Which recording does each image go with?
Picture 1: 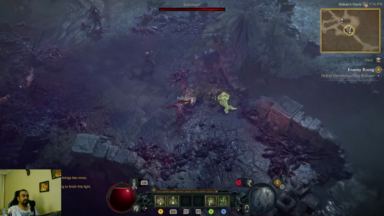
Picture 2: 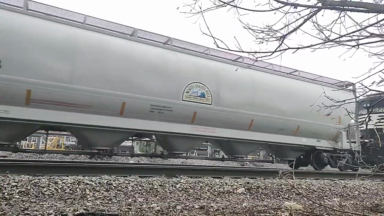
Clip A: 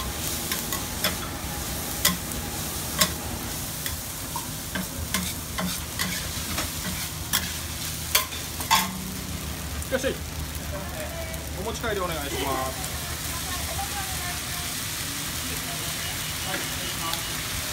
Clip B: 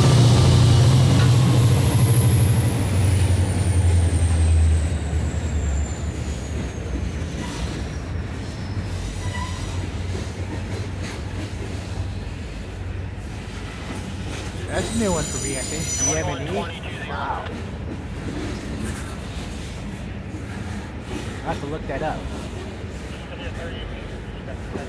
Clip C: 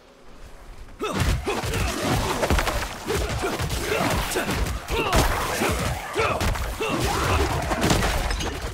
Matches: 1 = C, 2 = B